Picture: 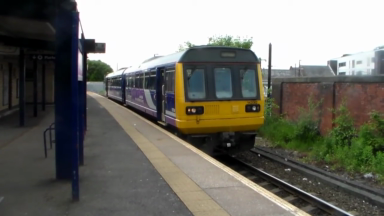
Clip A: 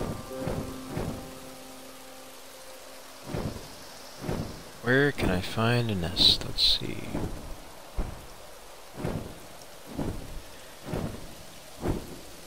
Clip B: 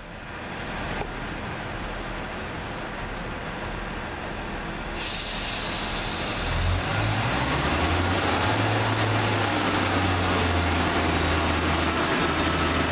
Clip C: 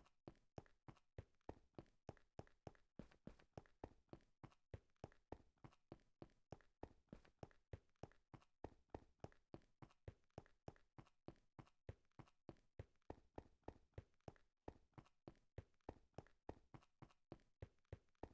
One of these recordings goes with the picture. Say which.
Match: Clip B